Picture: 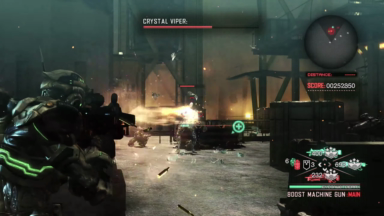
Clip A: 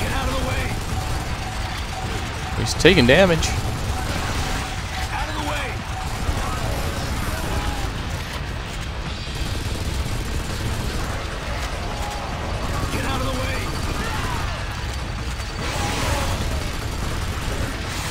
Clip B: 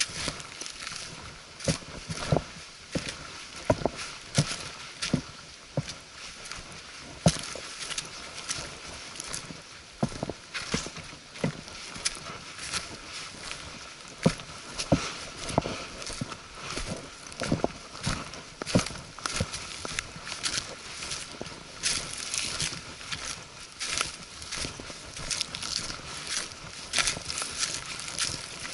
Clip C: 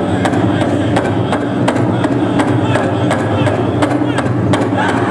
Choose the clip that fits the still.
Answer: A